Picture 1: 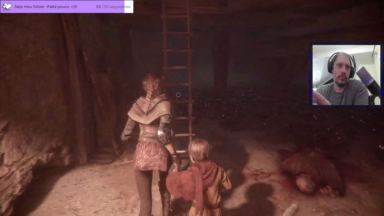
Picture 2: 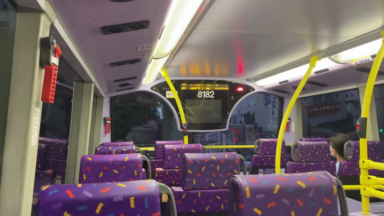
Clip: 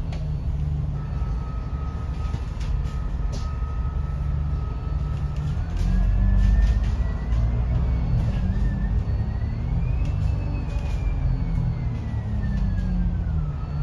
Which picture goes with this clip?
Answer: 2